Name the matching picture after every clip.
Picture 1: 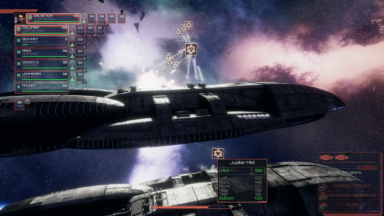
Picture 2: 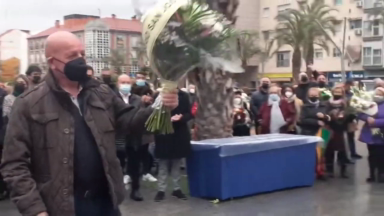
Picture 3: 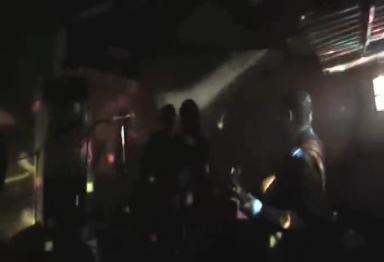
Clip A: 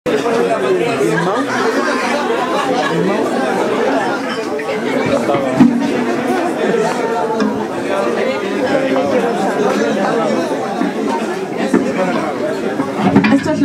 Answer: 3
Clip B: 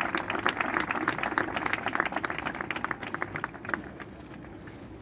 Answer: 2